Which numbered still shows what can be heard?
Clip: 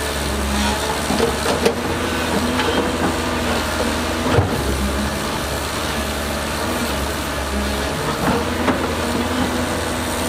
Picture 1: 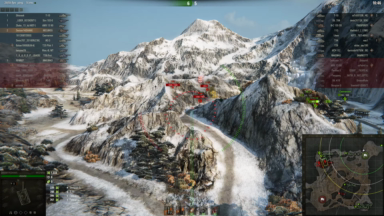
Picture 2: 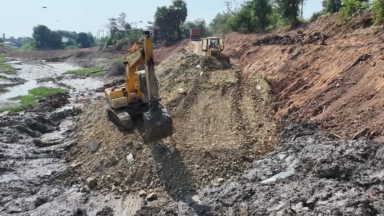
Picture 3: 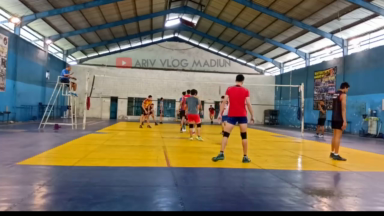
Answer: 2